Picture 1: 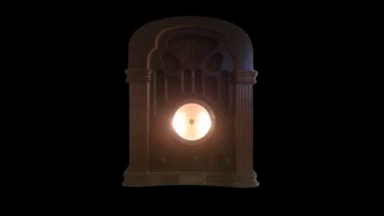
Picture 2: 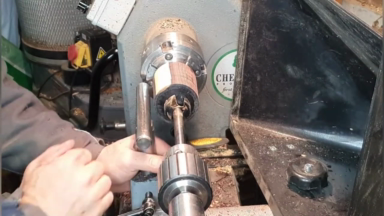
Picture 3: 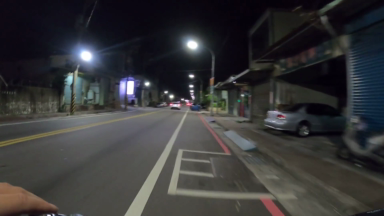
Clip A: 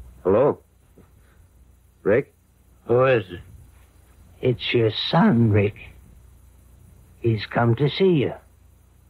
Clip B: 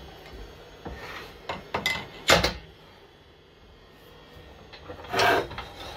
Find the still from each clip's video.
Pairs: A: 1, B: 2